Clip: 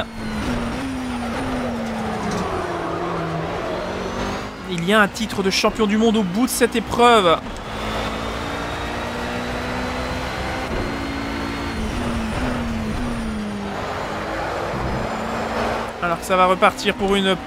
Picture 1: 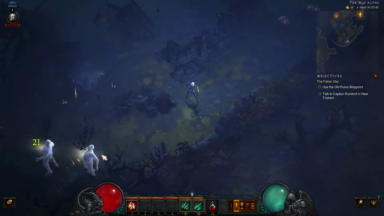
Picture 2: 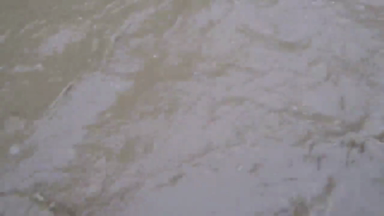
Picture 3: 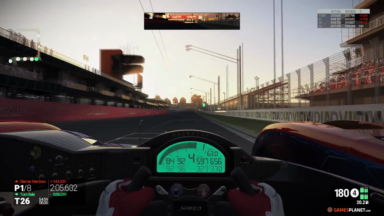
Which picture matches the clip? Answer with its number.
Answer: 3